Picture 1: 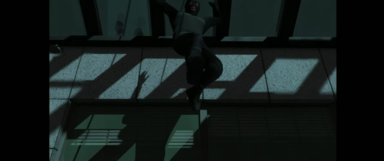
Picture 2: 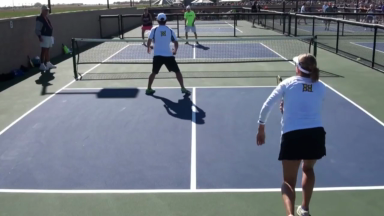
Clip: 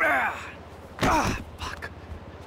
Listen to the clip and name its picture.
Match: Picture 1